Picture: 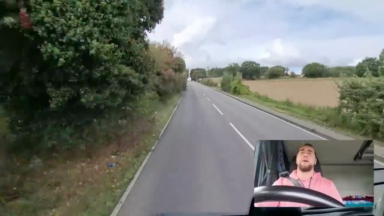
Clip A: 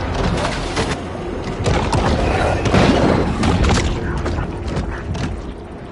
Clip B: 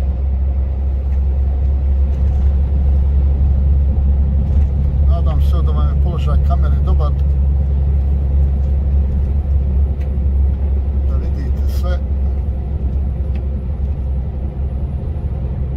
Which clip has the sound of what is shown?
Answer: B